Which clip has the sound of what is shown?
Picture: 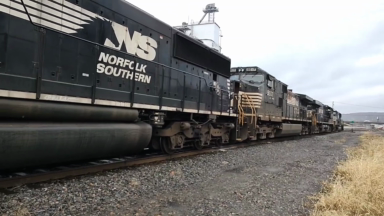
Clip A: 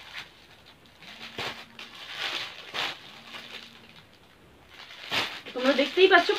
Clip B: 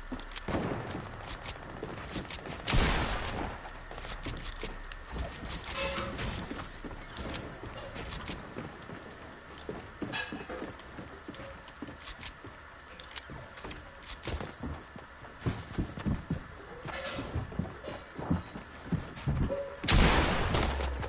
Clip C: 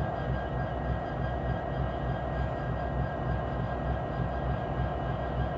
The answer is C